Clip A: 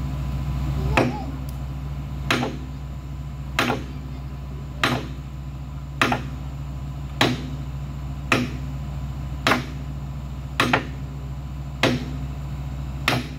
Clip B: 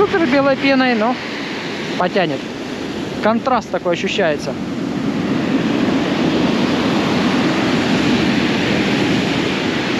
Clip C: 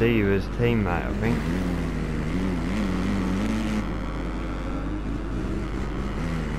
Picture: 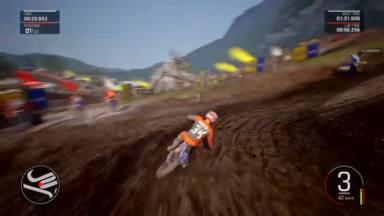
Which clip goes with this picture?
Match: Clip C